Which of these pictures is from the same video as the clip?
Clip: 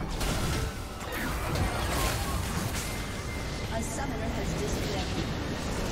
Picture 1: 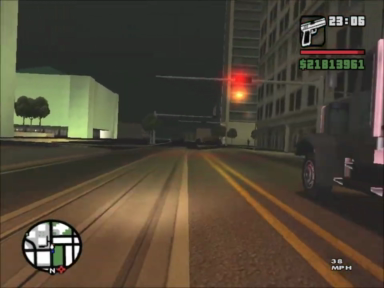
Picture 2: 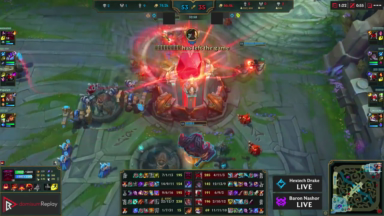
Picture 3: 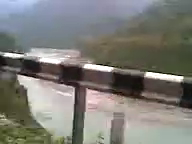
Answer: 2